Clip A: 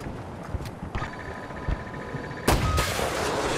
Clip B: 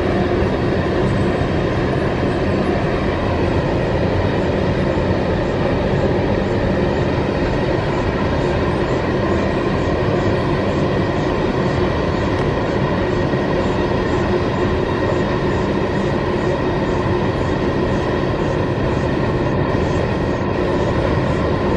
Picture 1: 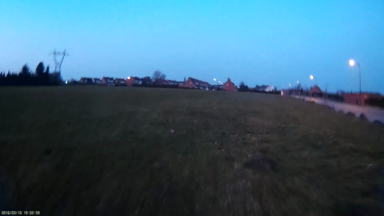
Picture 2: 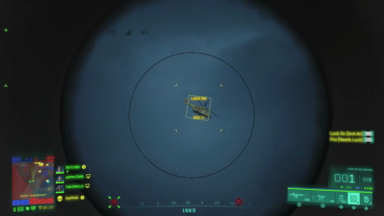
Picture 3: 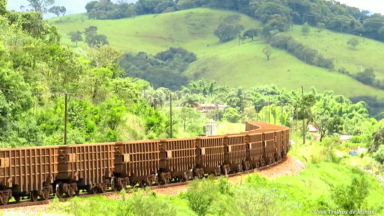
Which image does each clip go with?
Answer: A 2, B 3